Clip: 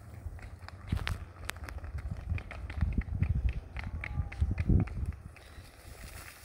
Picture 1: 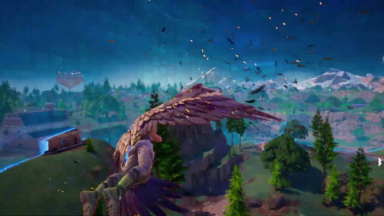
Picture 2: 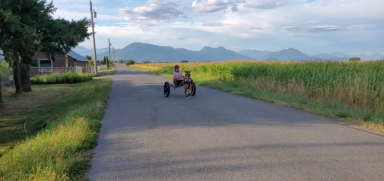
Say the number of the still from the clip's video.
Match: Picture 2